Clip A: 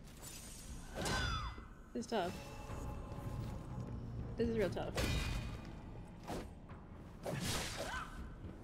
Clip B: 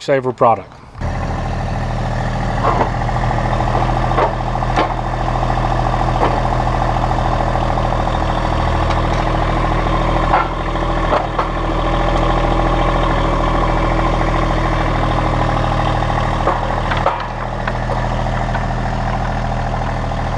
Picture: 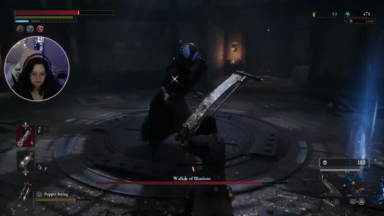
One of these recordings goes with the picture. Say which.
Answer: A